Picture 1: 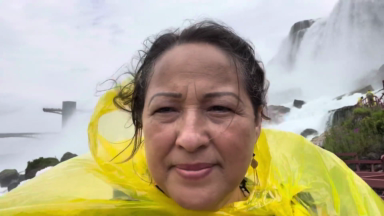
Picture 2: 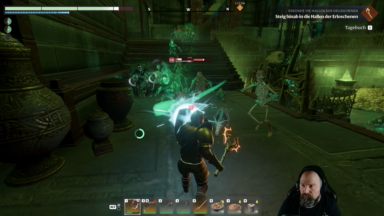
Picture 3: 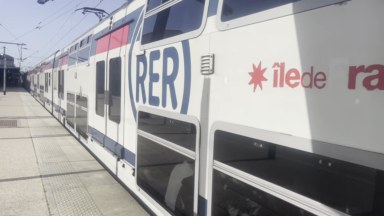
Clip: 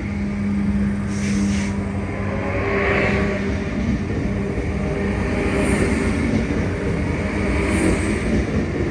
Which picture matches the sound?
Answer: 3